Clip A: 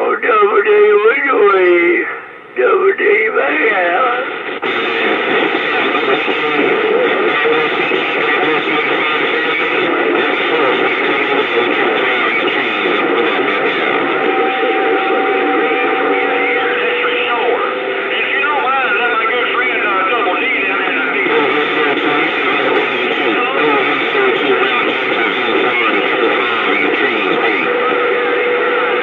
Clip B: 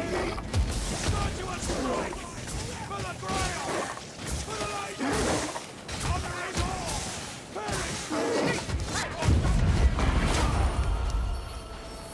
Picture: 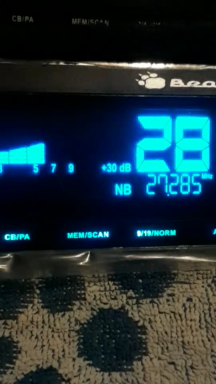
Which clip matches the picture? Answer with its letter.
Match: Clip A